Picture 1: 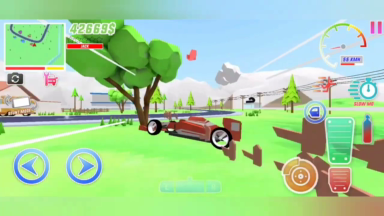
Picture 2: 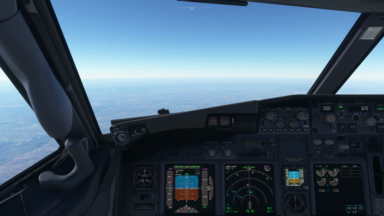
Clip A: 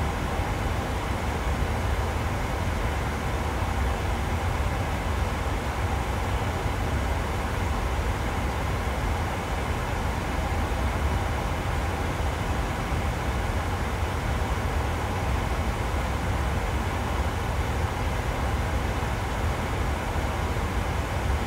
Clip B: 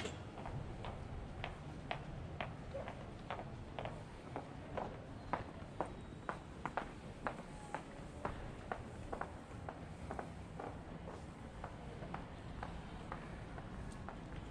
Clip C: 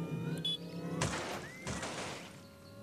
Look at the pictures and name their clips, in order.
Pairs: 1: C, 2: A